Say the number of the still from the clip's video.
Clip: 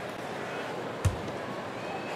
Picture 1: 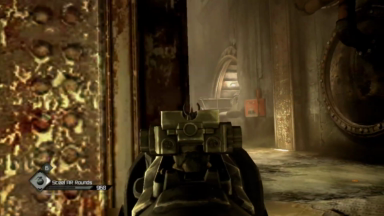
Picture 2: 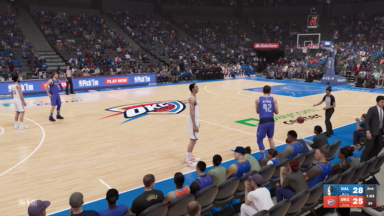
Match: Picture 2